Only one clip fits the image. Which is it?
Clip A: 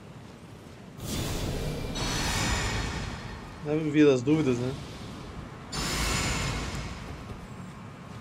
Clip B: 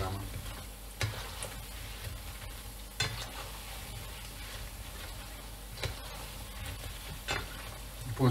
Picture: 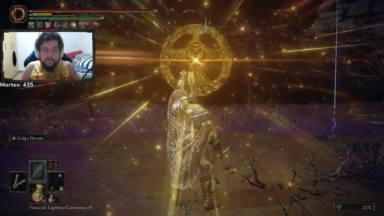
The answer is A